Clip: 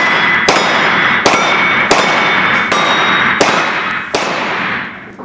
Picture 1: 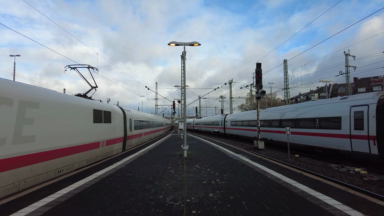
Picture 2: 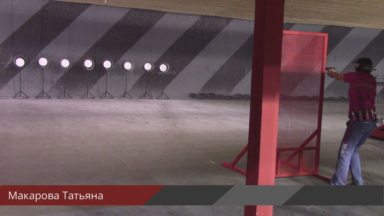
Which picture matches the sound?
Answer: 2